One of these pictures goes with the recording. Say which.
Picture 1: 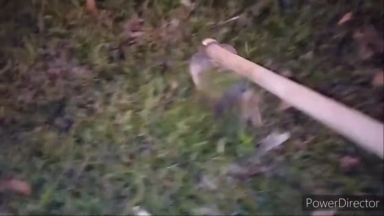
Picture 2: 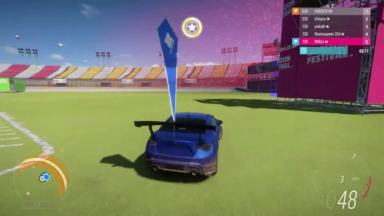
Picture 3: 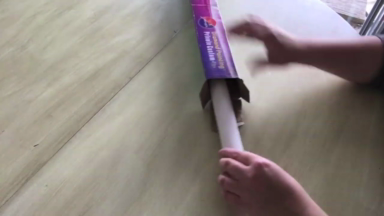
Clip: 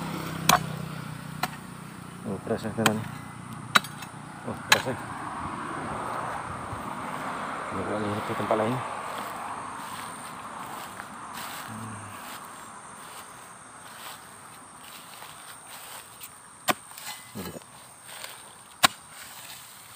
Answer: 1